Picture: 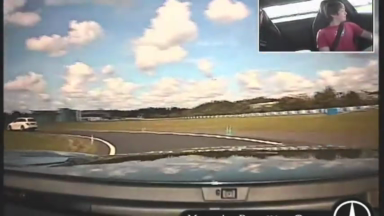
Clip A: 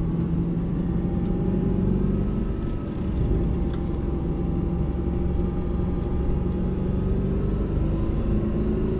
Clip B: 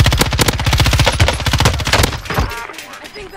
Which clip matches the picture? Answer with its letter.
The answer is A